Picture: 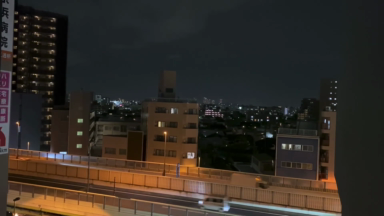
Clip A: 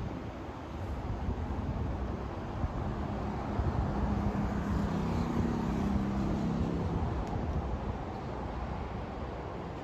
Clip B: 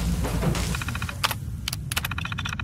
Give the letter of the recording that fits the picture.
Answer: A